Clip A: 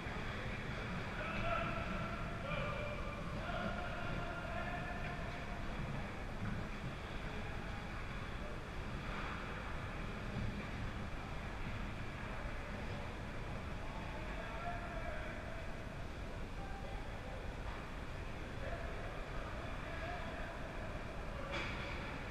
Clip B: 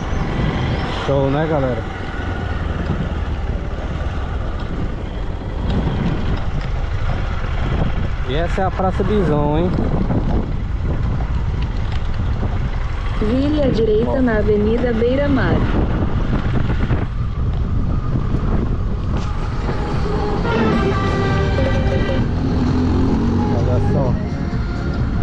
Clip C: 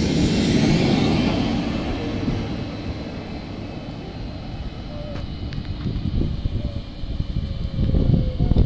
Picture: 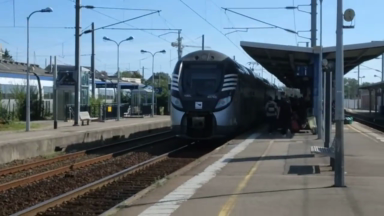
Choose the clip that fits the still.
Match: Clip C